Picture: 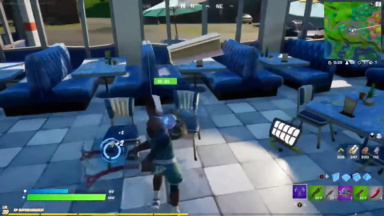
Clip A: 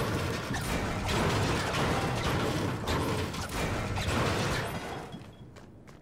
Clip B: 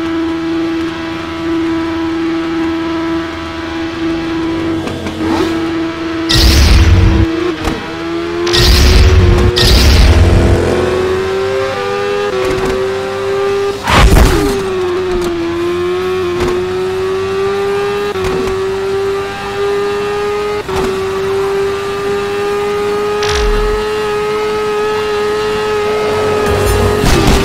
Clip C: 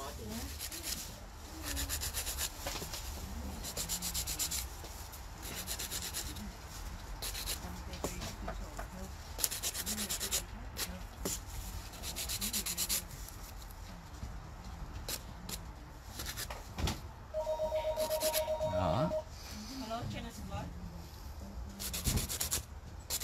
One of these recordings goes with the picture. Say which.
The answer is A